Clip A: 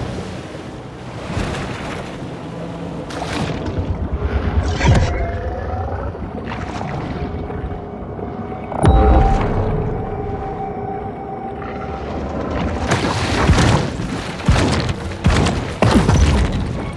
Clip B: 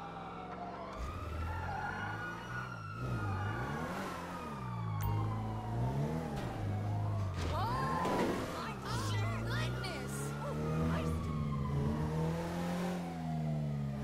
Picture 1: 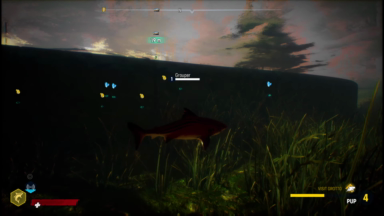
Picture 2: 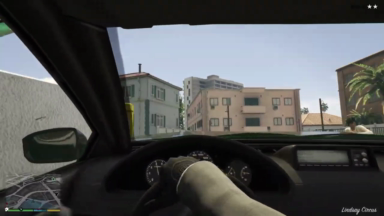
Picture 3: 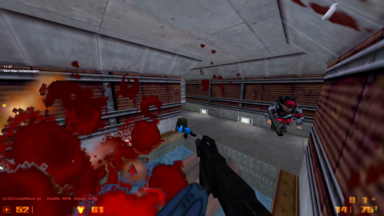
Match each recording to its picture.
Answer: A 1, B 2